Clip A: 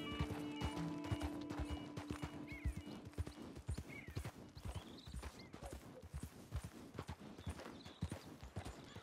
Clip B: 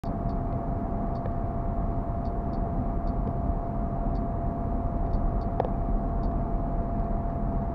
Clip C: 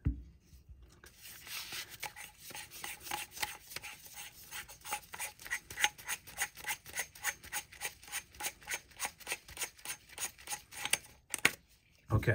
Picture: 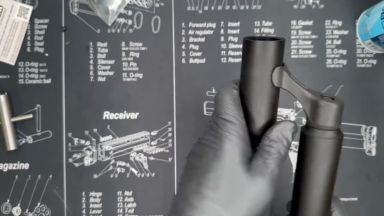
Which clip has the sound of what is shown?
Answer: C